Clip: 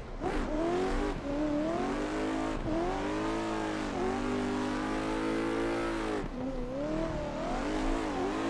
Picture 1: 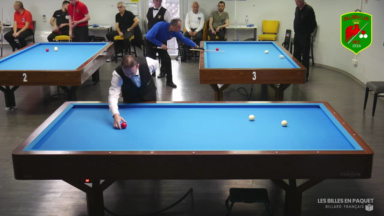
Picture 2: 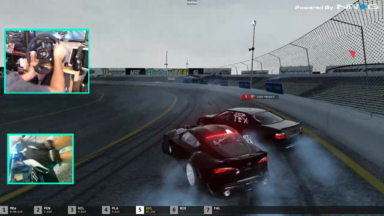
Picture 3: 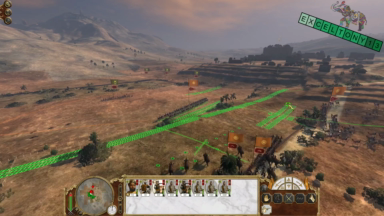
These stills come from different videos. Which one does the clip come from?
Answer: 2